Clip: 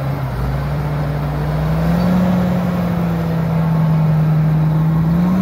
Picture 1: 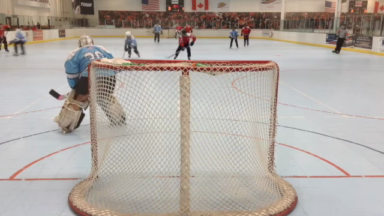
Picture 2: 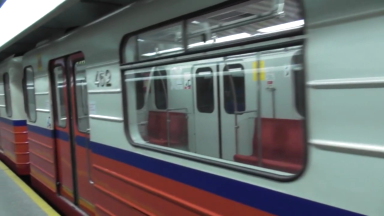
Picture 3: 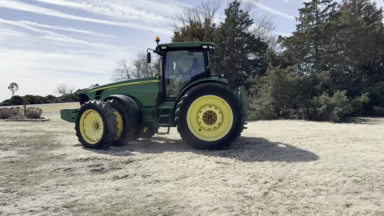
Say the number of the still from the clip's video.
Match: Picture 3